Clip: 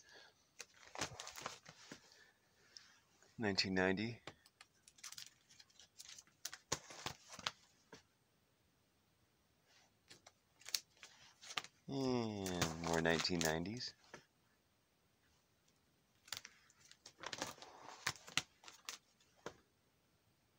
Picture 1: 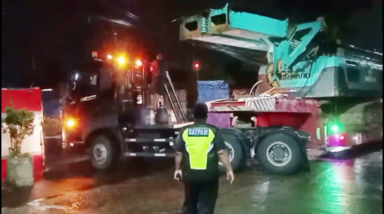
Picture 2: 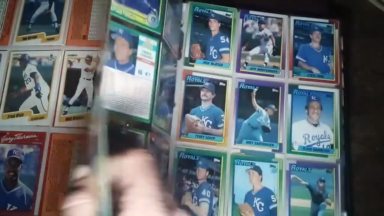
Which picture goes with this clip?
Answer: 2